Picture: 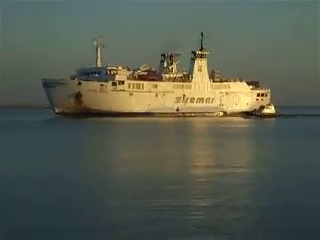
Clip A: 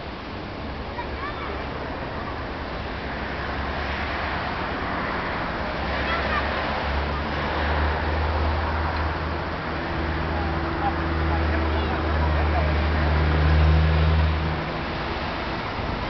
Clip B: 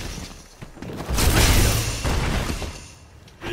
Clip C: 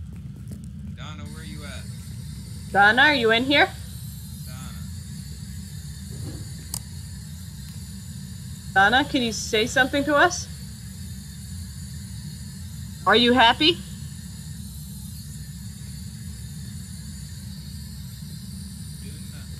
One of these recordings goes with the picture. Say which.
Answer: A